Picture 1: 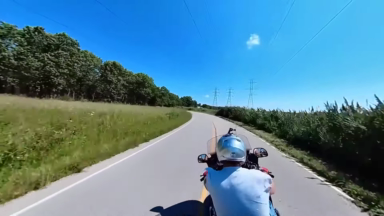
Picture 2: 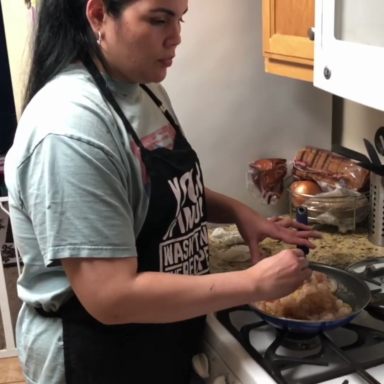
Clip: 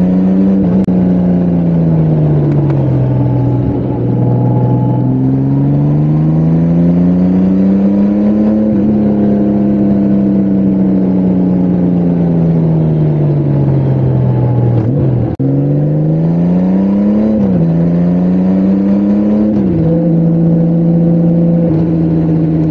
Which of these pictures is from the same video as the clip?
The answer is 1